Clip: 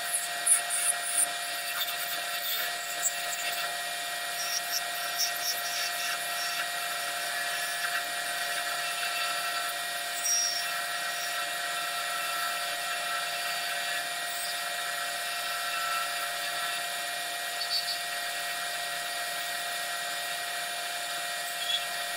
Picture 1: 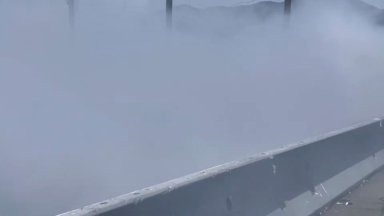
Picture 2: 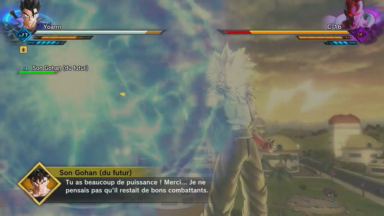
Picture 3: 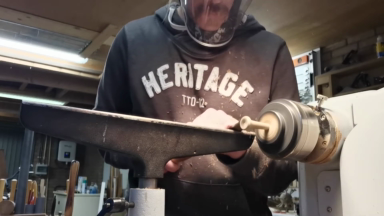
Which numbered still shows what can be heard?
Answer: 3